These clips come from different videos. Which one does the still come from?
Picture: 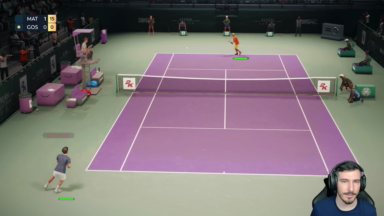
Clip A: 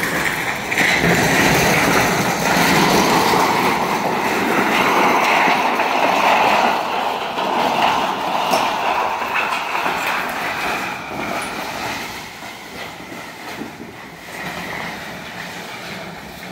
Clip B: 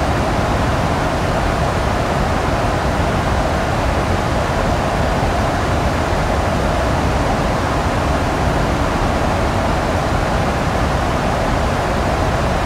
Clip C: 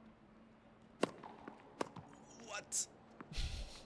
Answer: C